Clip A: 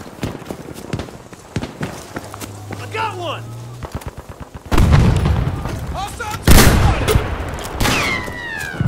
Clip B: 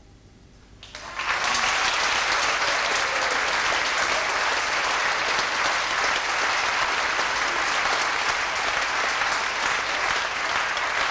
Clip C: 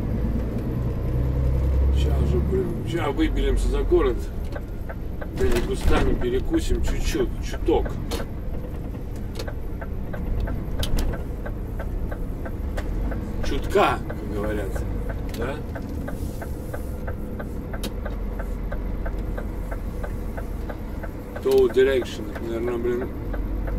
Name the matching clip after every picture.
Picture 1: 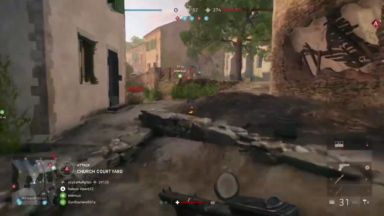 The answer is A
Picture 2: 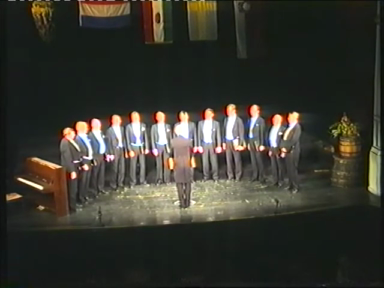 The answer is B